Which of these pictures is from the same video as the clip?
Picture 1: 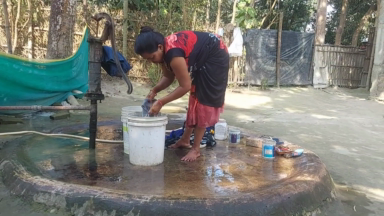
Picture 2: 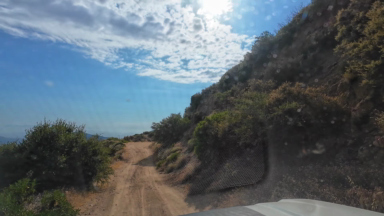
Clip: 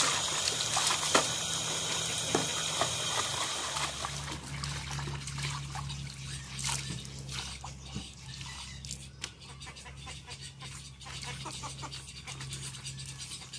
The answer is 1